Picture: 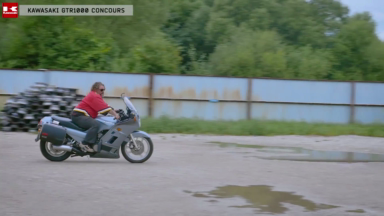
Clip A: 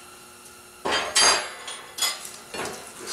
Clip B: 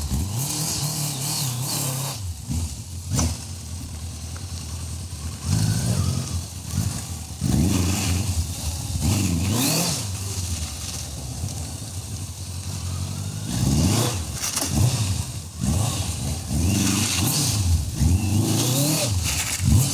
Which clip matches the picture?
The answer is B